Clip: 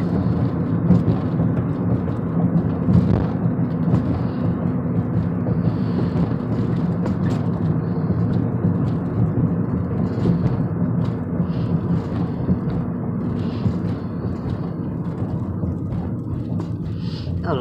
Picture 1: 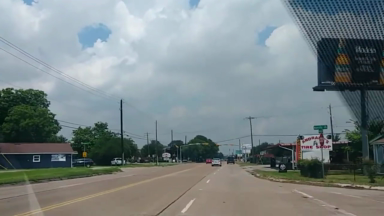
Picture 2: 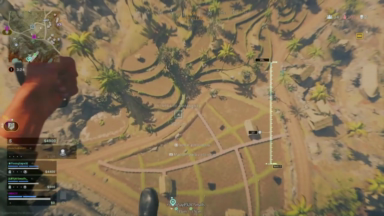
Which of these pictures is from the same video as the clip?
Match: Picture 1